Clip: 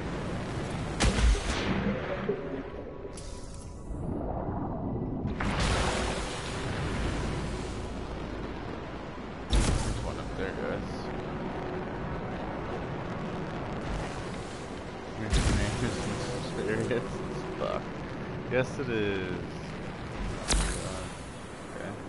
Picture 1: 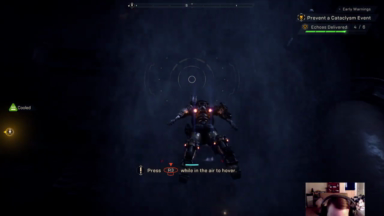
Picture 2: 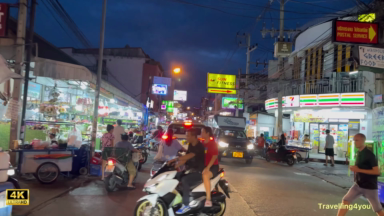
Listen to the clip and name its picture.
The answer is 1